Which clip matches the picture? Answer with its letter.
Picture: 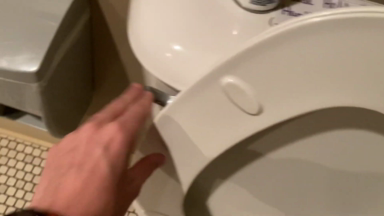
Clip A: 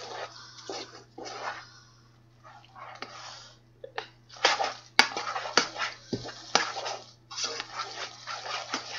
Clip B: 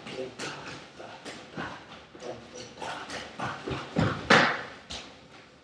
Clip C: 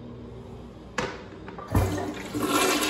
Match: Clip C